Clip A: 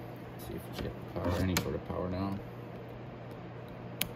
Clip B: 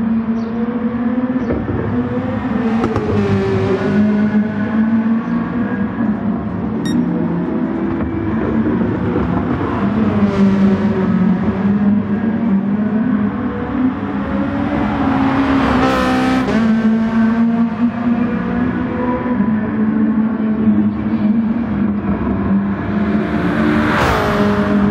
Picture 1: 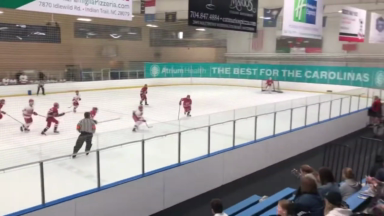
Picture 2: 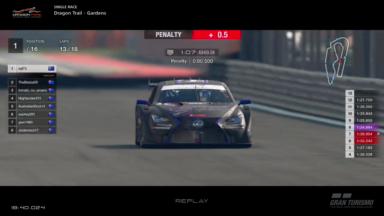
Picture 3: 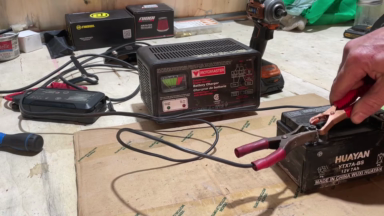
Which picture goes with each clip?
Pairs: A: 3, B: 2